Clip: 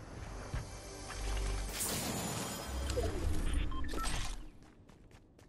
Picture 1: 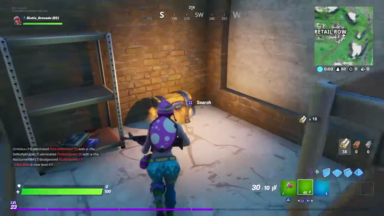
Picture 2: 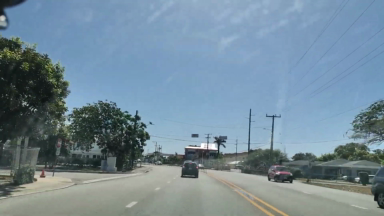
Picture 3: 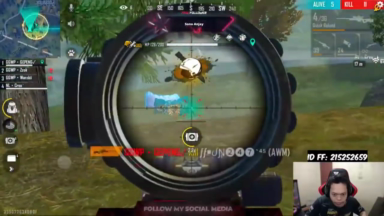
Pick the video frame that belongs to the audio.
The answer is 1